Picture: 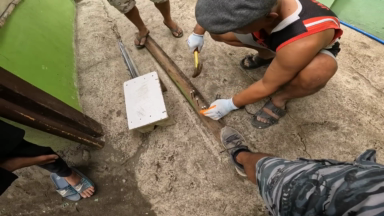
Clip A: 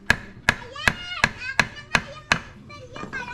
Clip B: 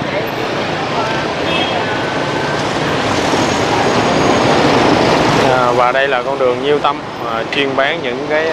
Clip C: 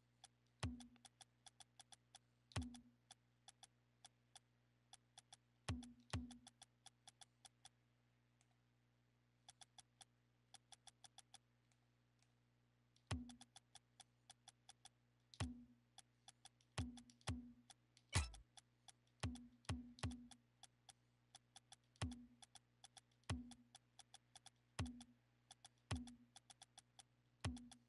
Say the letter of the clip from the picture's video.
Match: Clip A